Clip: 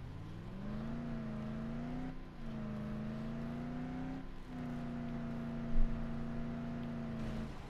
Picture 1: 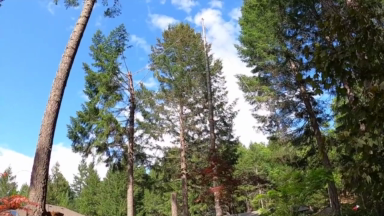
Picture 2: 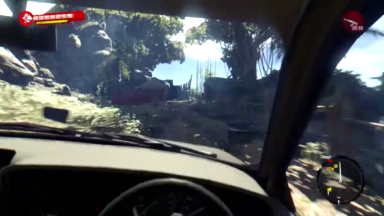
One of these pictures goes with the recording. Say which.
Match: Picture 2